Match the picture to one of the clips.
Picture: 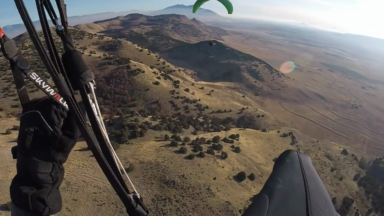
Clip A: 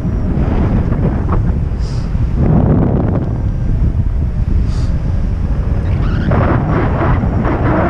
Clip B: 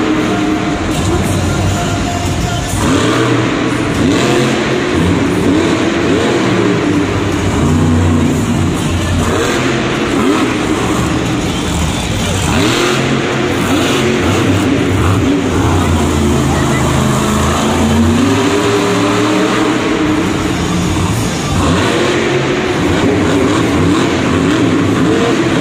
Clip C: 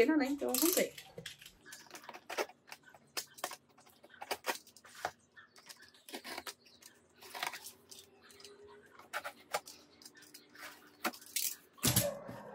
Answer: A